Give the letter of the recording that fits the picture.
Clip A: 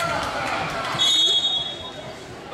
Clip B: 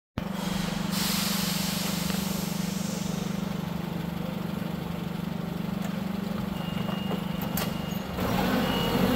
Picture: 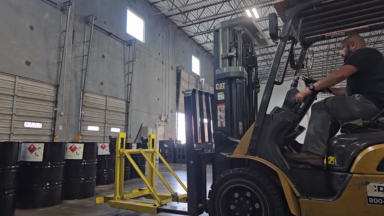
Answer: B